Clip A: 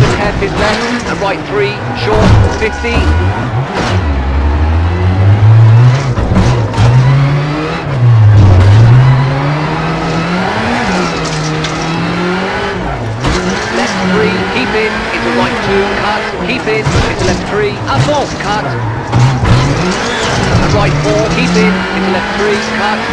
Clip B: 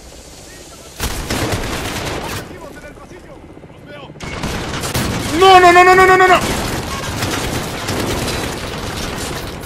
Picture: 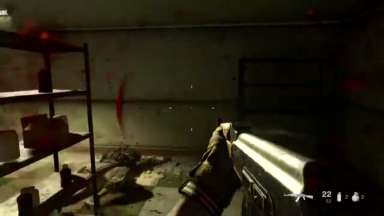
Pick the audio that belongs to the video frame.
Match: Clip B